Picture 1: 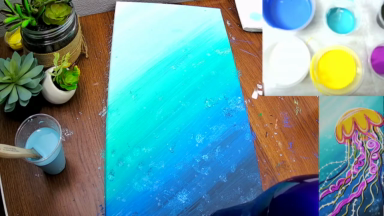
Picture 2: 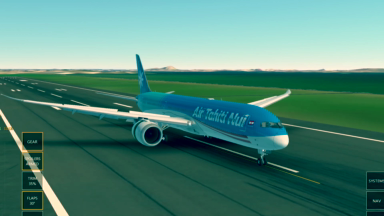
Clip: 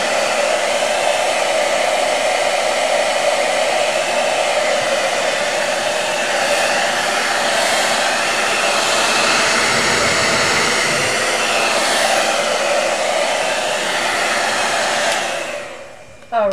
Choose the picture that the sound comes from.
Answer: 1